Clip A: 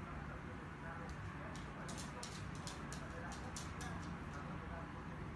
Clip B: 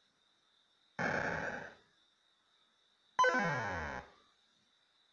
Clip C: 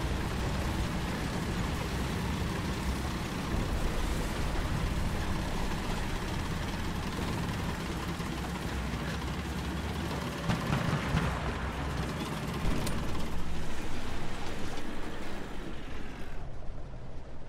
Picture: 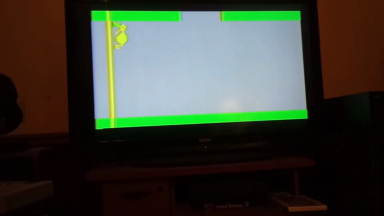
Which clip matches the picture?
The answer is B